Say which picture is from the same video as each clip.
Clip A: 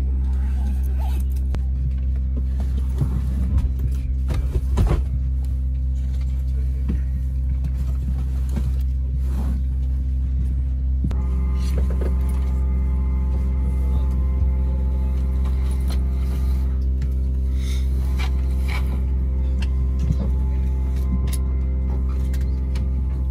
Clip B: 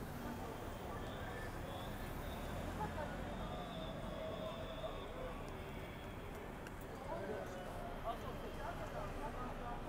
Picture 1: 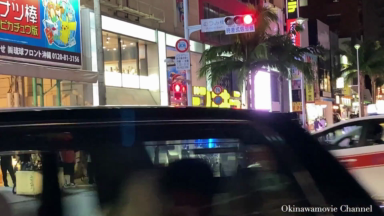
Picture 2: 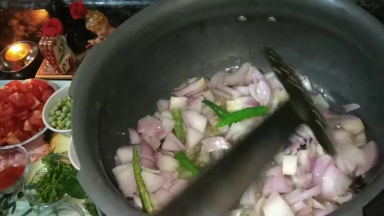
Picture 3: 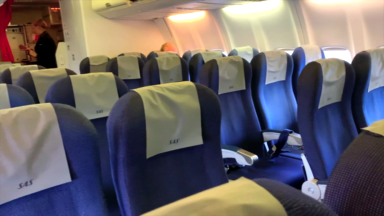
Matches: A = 3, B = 1